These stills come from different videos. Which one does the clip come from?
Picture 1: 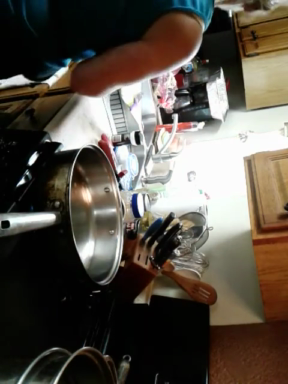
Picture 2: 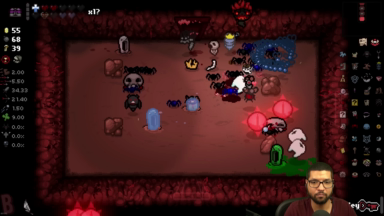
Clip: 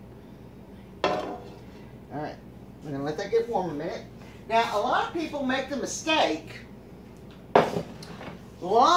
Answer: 1